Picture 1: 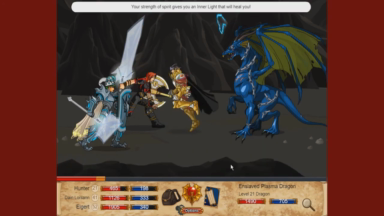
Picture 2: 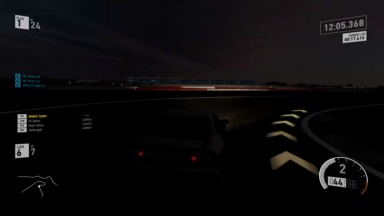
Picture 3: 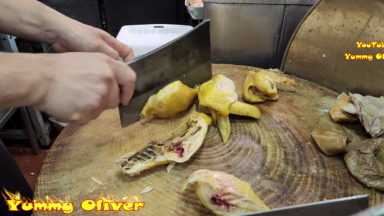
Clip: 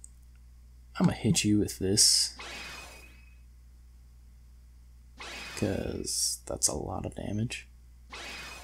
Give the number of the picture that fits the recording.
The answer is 1